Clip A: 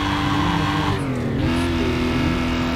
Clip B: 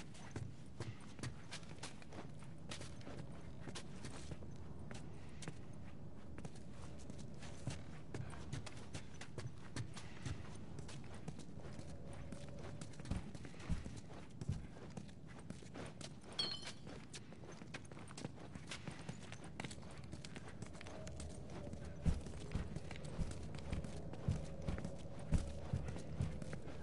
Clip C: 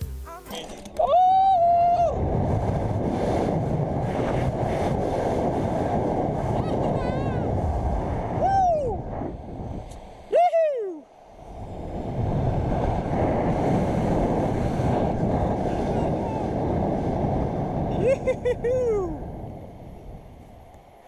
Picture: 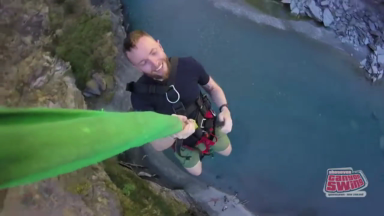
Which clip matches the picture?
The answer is C